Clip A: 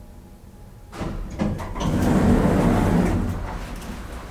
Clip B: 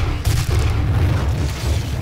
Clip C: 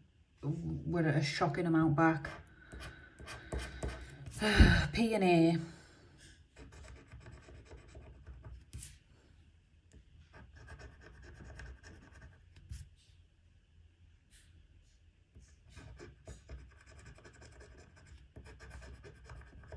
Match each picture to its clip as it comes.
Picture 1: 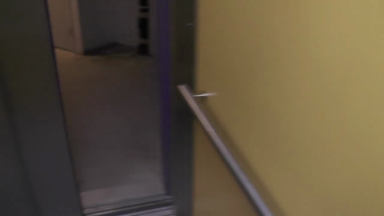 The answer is A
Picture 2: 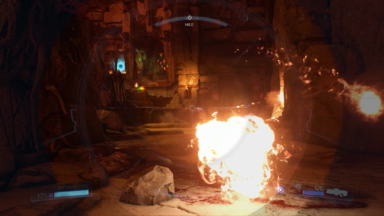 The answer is B